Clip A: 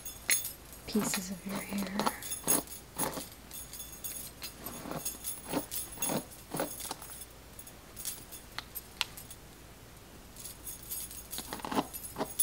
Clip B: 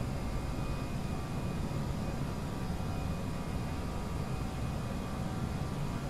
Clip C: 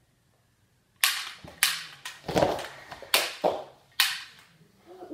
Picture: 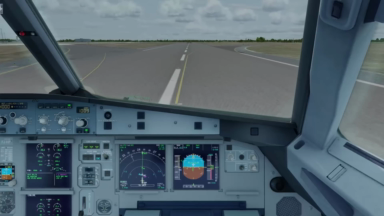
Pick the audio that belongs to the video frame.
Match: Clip B